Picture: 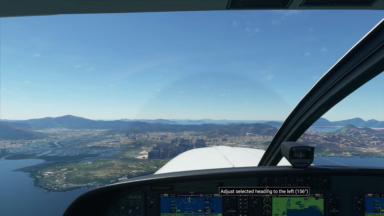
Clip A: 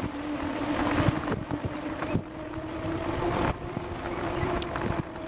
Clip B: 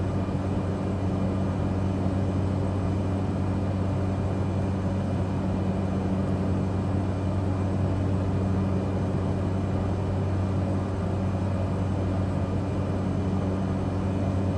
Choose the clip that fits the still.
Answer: B